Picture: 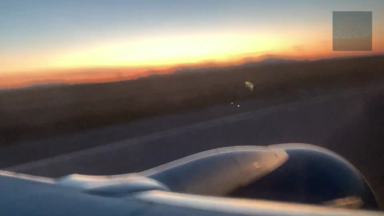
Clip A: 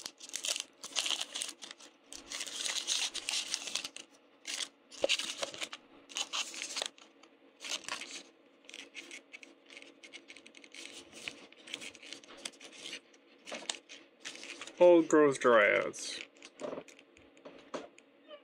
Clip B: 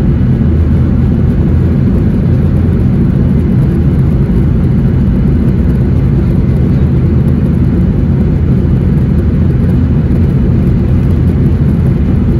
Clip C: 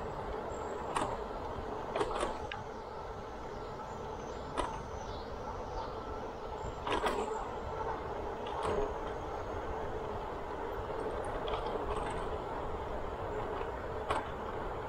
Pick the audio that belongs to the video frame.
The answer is B